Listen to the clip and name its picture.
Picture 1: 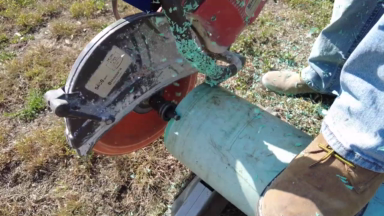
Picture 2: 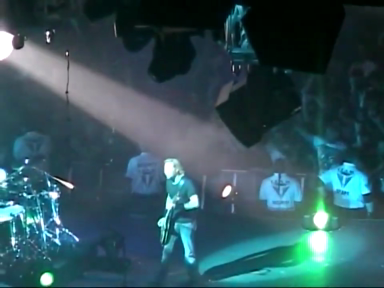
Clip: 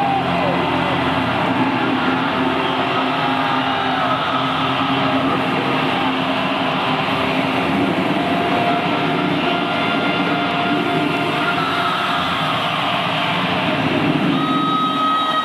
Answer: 2